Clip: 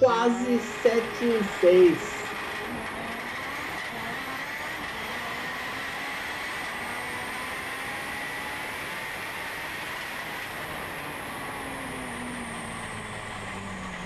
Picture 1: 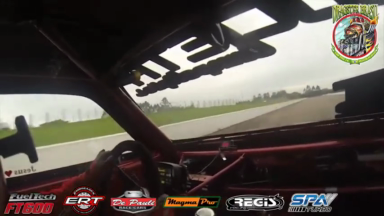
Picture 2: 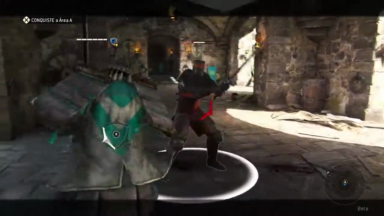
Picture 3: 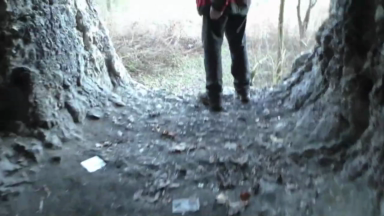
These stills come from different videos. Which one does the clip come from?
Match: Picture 1